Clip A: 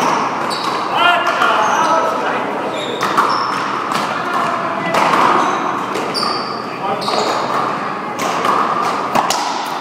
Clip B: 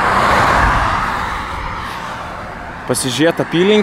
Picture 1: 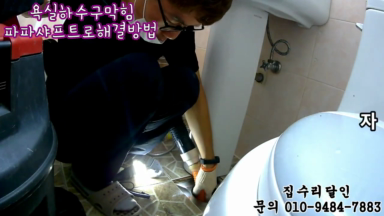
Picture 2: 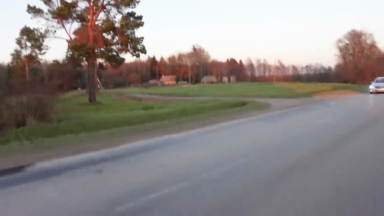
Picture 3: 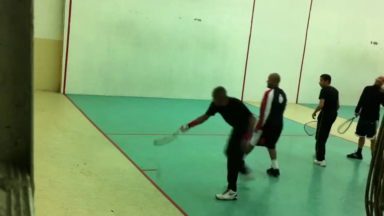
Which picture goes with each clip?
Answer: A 3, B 2